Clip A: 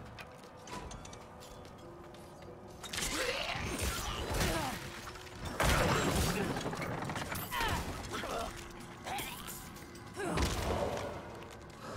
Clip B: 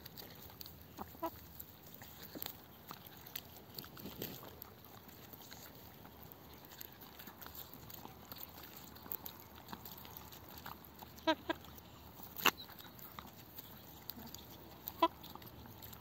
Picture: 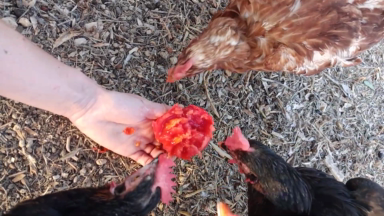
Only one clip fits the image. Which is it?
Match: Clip B